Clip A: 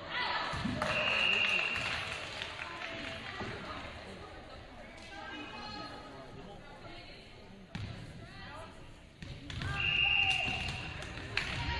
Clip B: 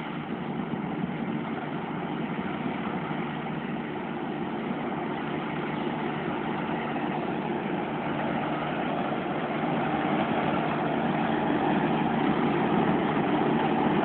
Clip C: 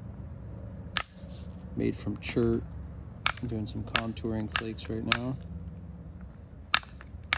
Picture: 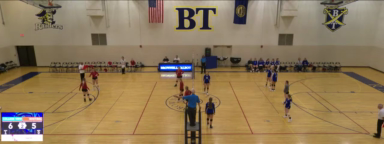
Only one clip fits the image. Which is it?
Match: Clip A